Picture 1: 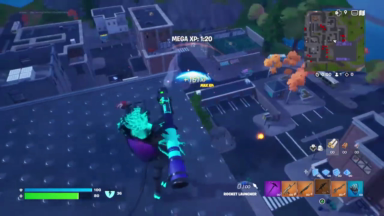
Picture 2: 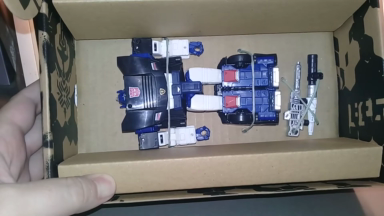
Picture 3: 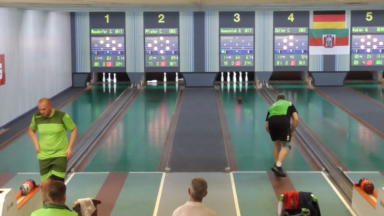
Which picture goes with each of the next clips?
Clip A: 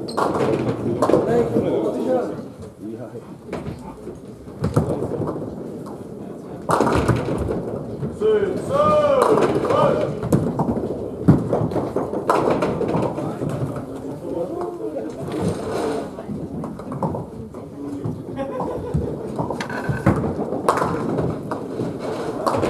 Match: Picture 3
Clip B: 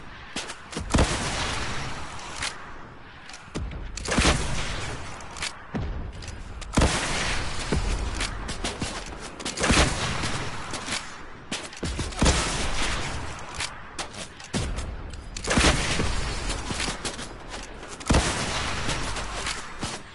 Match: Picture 1